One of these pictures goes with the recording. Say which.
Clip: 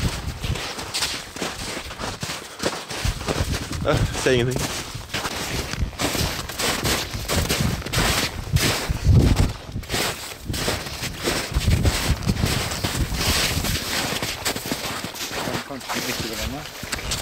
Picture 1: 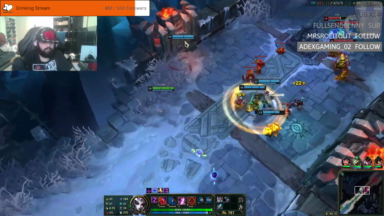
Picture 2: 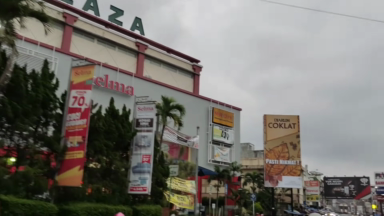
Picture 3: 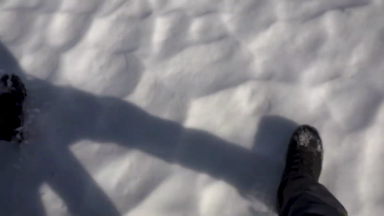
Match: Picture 3